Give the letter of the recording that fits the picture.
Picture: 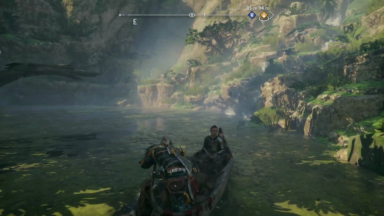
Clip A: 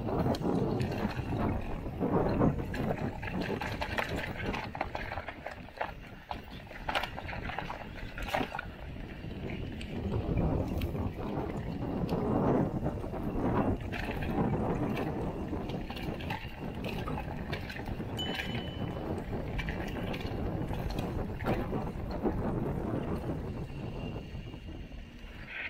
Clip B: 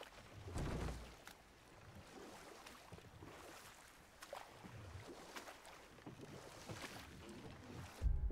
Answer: B